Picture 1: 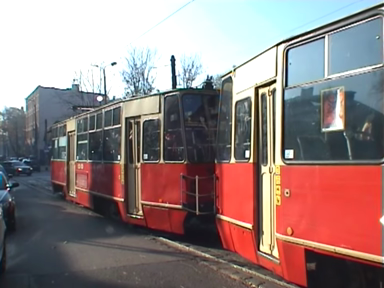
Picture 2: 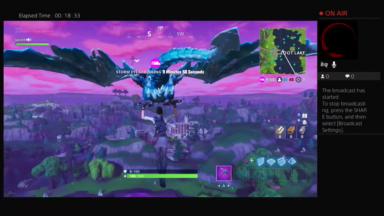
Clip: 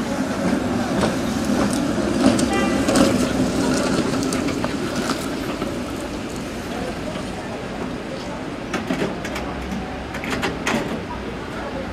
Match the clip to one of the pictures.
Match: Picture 1